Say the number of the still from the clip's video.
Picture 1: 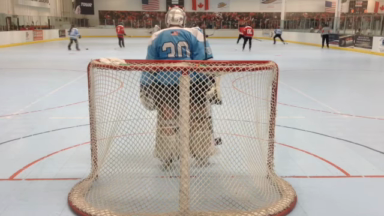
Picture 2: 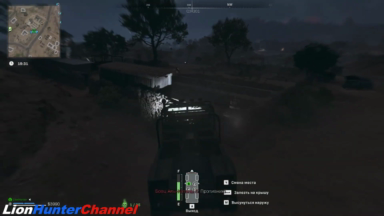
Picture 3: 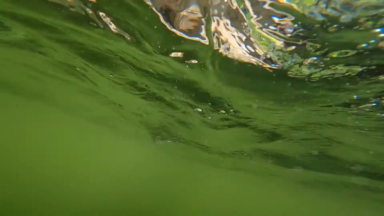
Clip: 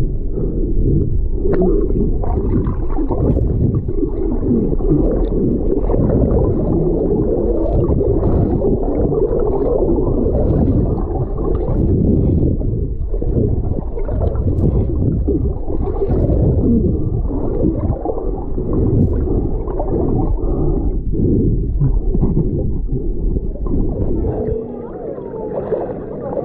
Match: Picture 3